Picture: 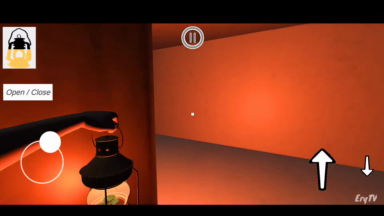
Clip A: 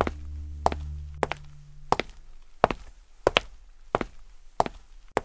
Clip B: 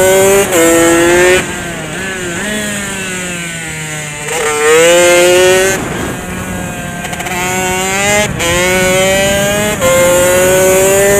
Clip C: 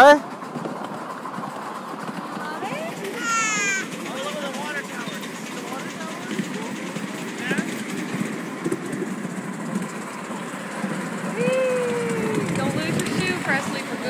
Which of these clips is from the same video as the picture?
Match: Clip A